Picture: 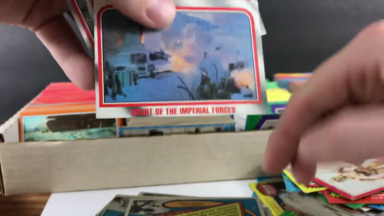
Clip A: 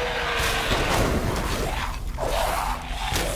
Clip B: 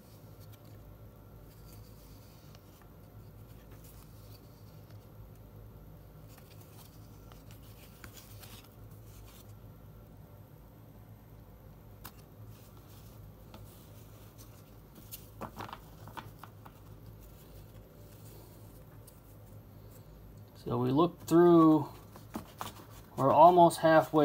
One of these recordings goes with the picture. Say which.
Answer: B